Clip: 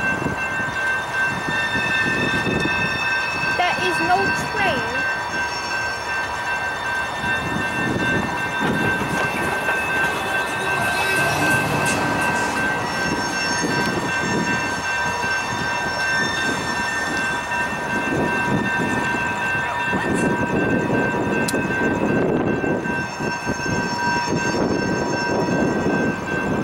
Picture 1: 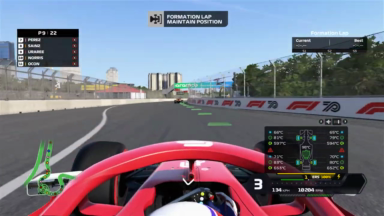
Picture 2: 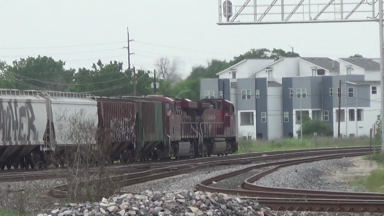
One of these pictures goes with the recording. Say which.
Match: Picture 2